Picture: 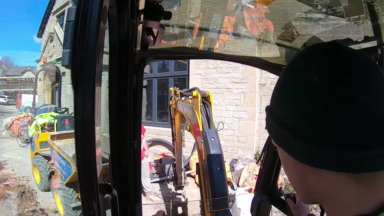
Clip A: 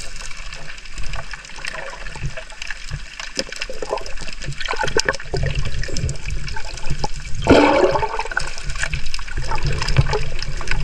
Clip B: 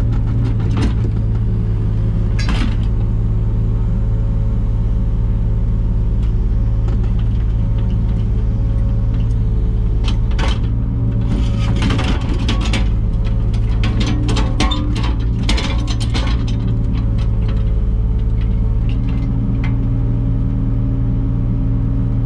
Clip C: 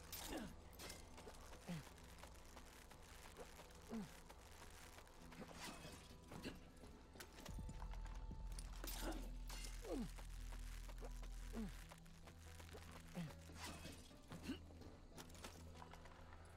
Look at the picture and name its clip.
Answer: B